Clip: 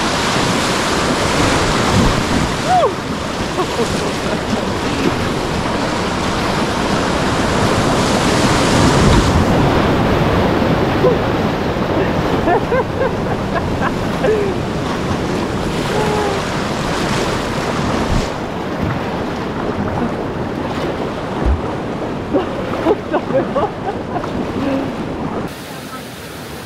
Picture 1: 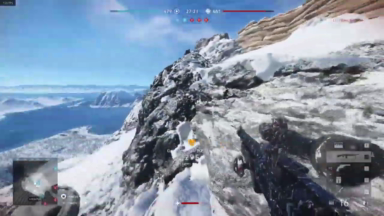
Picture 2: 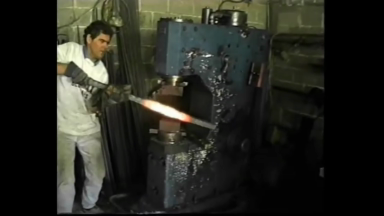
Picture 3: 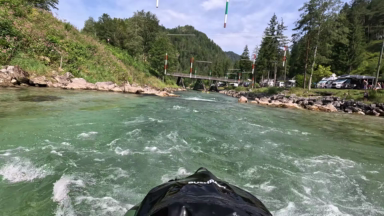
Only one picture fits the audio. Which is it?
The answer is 3